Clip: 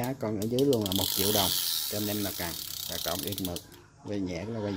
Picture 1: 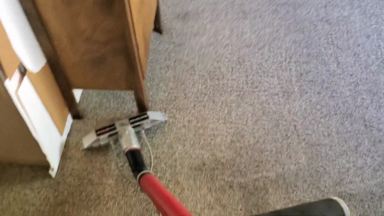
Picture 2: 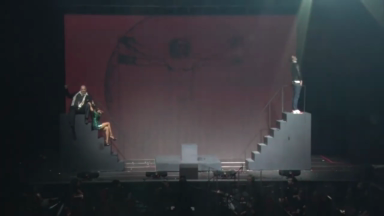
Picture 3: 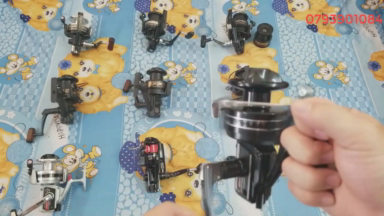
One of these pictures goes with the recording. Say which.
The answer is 3